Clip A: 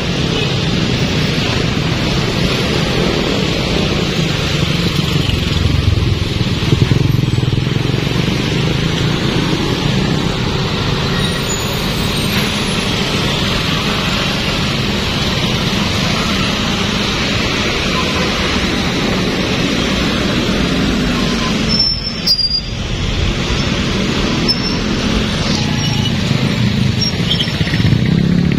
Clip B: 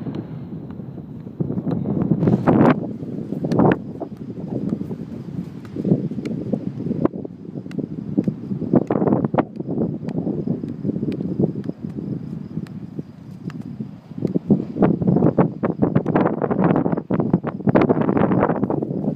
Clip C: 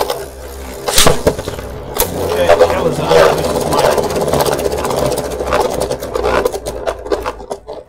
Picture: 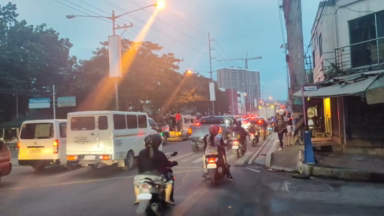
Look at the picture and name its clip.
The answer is A